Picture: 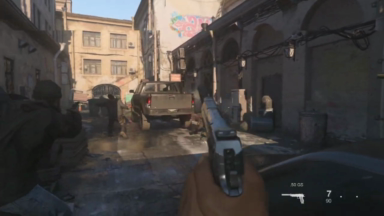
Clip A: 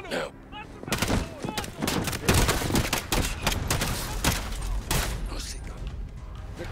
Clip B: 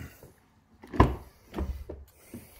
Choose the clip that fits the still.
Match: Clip A